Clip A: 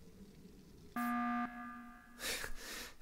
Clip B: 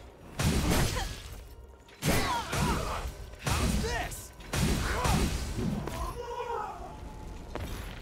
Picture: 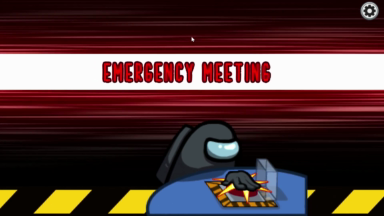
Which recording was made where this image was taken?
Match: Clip A